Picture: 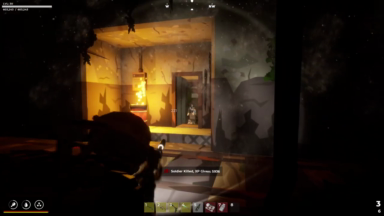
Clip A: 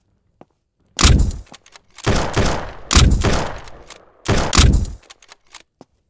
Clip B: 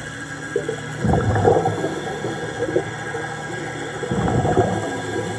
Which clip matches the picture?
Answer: A